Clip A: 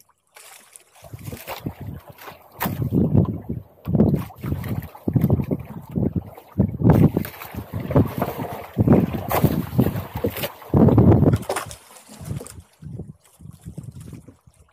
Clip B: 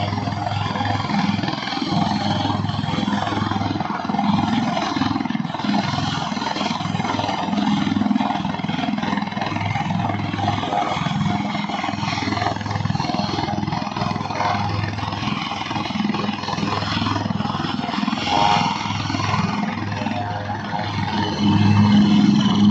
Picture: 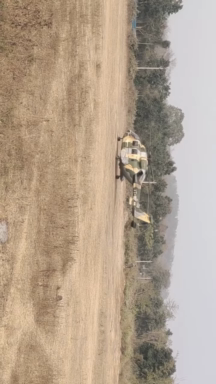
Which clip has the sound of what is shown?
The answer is B